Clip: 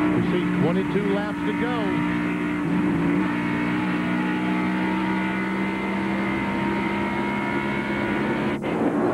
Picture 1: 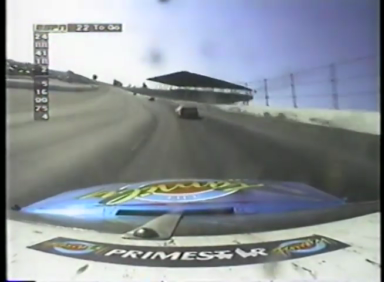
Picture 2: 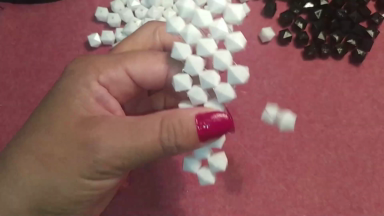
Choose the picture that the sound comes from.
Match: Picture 1